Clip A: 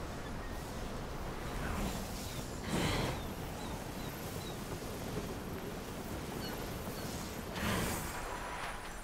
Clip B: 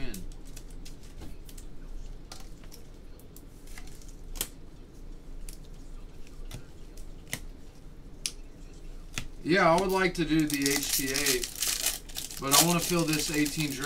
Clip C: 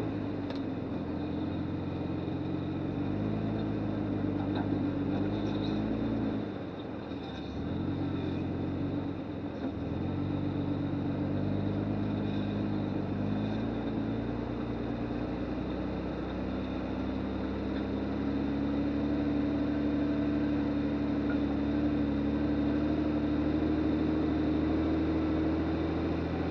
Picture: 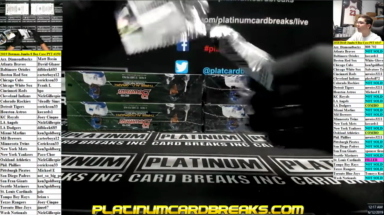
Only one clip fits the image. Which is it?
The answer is B